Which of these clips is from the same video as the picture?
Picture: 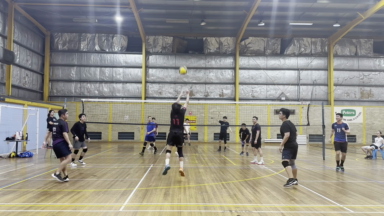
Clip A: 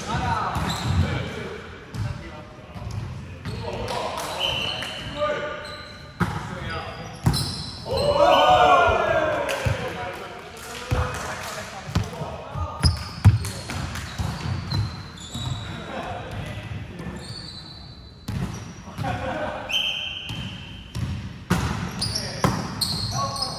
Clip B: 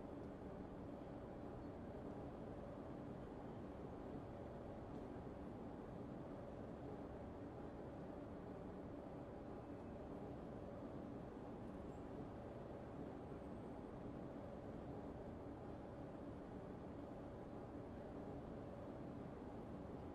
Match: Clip A